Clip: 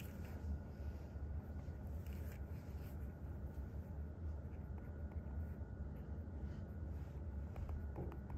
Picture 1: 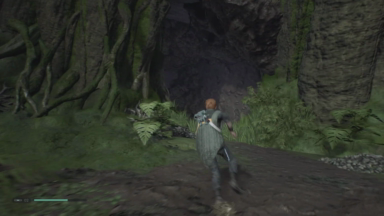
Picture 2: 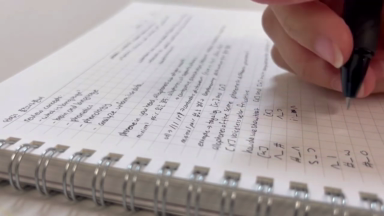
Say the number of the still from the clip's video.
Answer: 2